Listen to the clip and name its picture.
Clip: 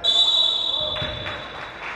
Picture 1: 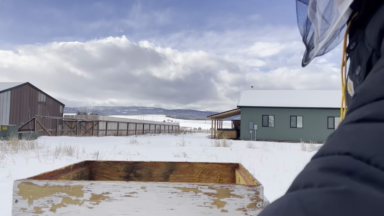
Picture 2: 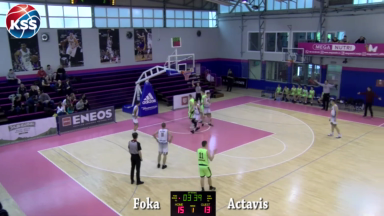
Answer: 2